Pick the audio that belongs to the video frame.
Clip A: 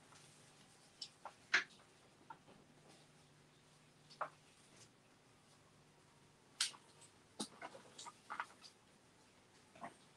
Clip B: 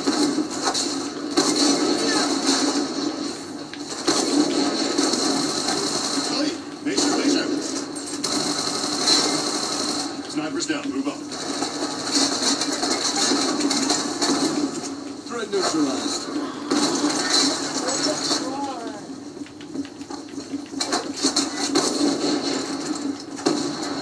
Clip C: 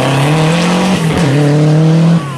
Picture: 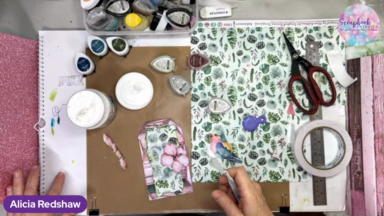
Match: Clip A